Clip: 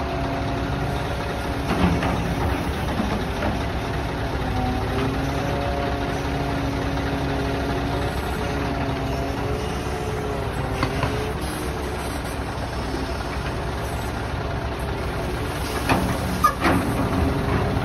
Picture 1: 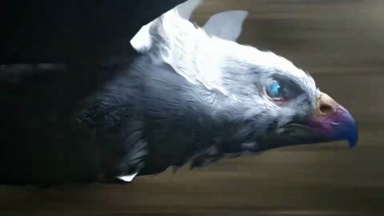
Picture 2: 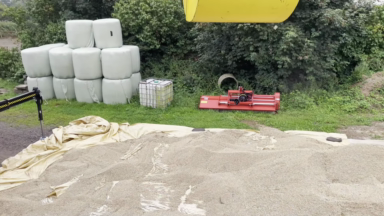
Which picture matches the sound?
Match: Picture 2